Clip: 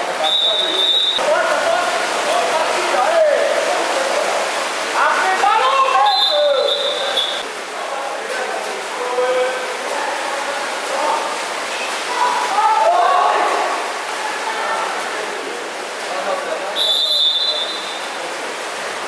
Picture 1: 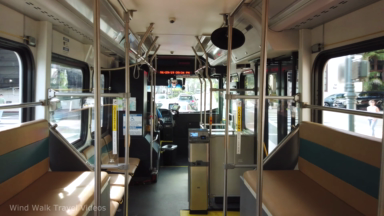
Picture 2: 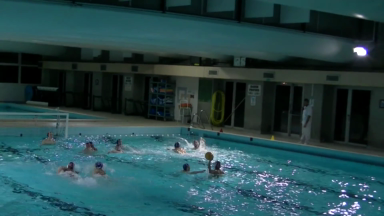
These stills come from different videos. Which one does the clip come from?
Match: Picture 2